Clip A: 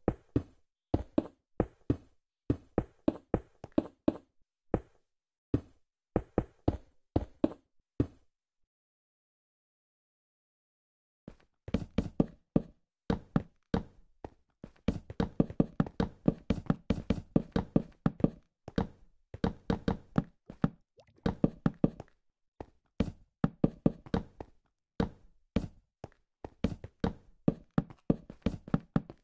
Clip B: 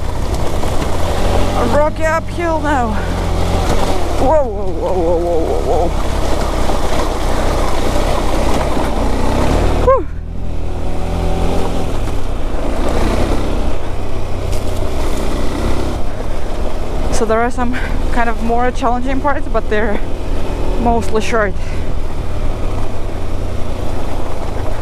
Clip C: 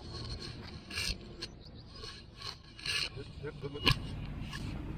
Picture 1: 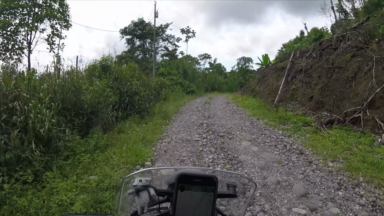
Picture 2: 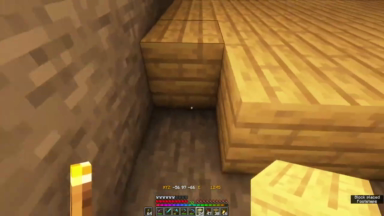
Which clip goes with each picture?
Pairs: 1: B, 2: A